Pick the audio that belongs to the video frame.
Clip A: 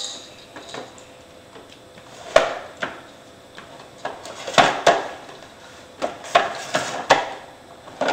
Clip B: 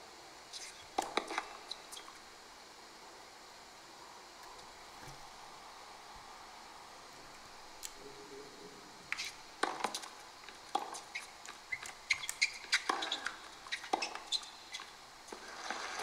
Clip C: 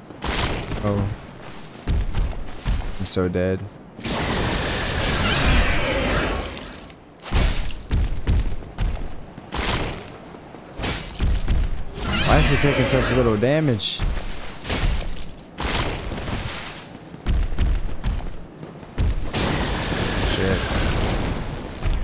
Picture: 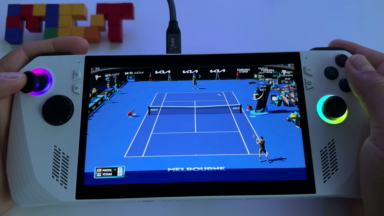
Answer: B